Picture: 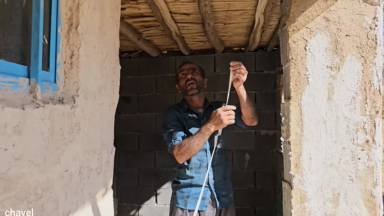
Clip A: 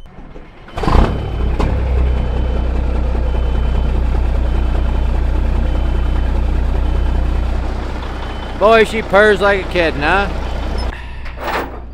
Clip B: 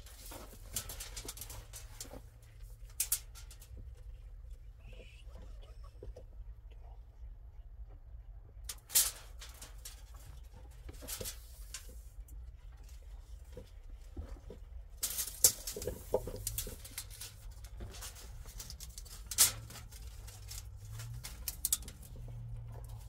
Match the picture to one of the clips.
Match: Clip B